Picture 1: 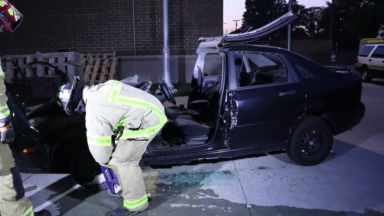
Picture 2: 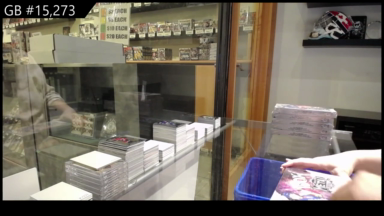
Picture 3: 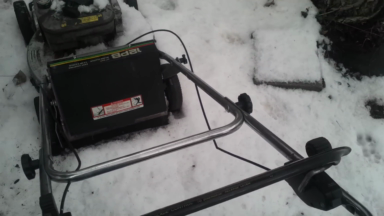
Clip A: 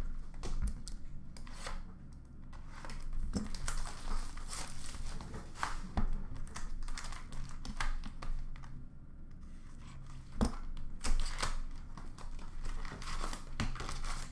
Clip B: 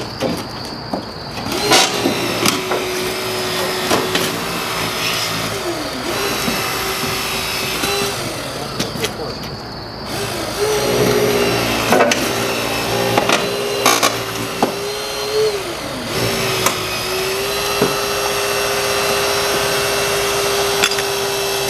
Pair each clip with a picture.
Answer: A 2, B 1